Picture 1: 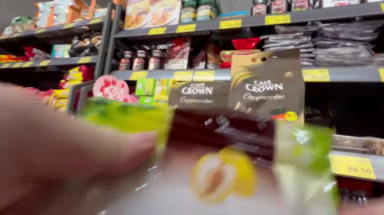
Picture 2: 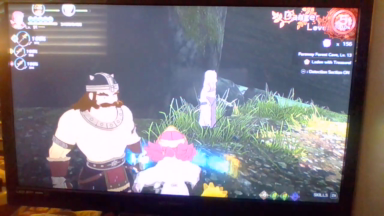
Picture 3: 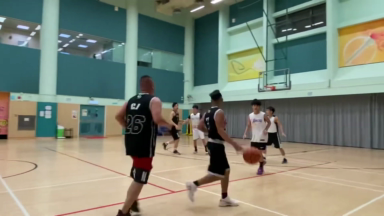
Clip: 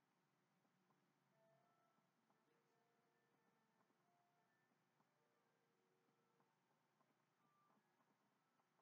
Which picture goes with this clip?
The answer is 2